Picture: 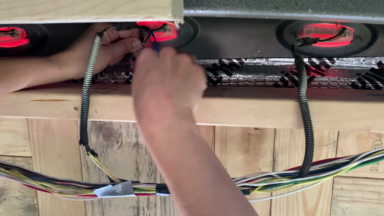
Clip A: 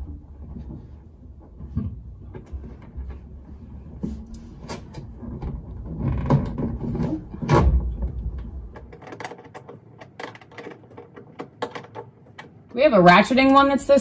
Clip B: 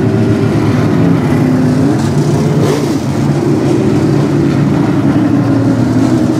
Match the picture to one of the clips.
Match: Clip A